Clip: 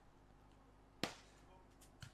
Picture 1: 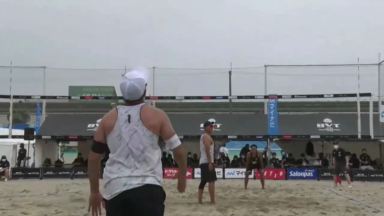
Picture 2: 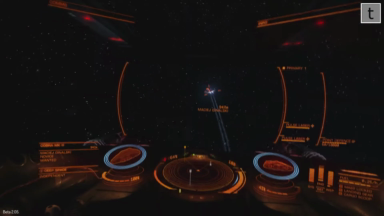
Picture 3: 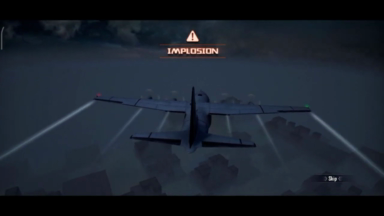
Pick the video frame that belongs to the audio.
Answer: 1